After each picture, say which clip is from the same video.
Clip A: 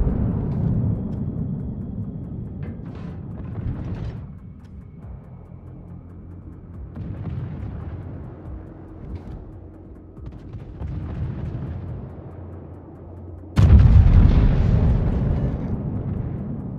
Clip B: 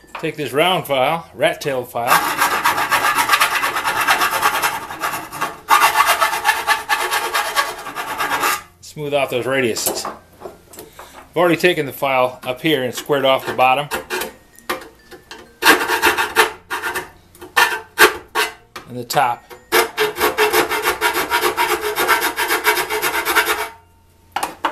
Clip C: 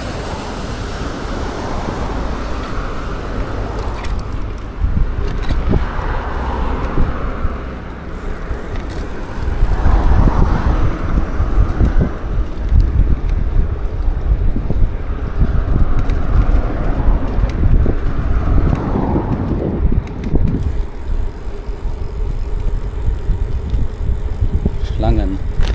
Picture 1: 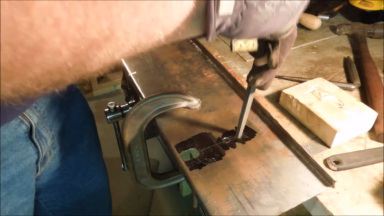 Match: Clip B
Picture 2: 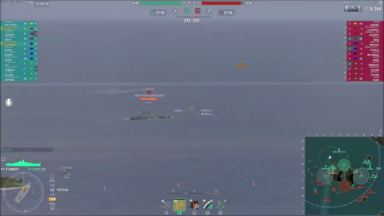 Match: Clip A